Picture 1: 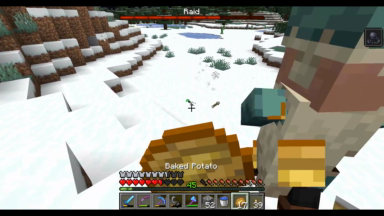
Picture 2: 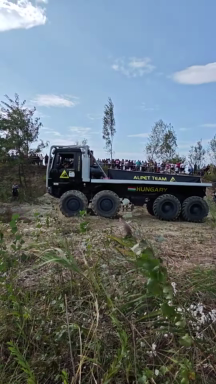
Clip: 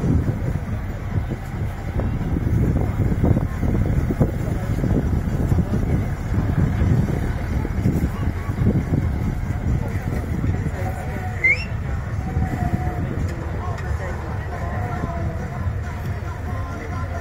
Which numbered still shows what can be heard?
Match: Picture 2